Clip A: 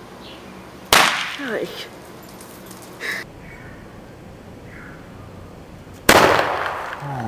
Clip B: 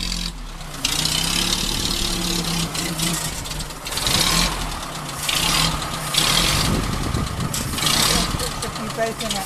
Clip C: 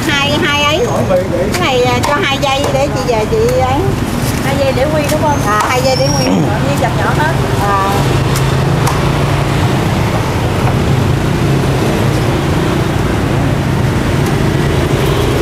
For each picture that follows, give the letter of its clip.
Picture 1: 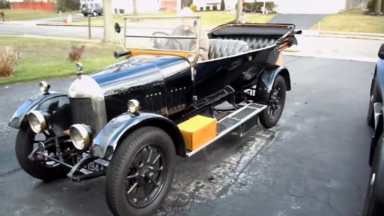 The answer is B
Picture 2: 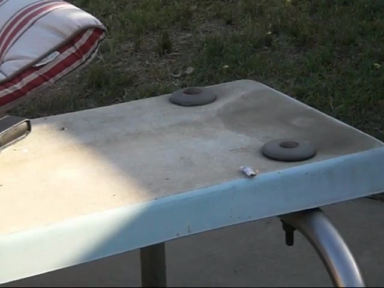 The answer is A